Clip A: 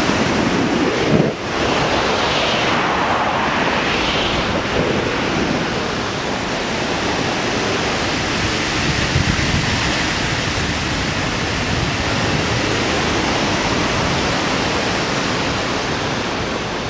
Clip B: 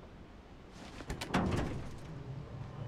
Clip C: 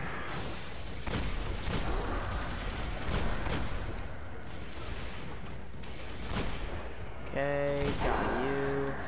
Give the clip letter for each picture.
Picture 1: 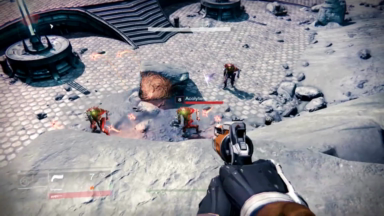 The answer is C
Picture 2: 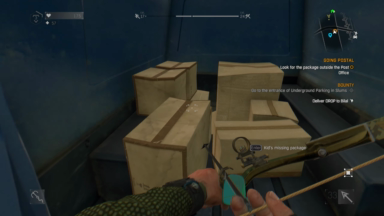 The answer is B